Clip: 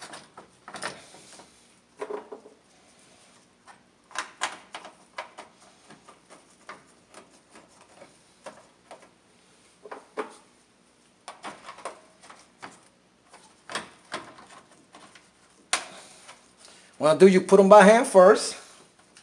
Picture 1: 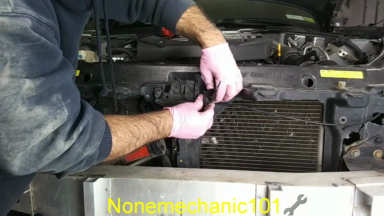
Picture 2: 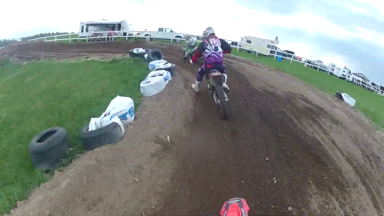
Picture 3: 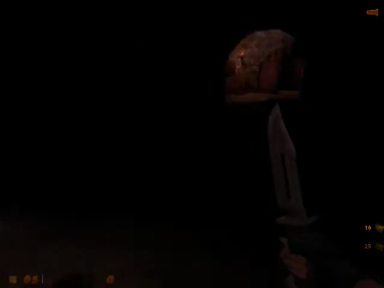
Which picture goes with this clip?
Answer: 1